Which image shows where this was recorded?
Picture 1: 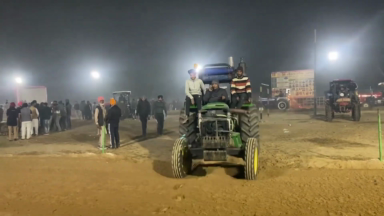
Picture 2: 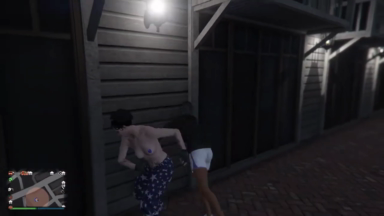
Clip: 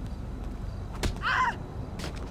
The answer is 2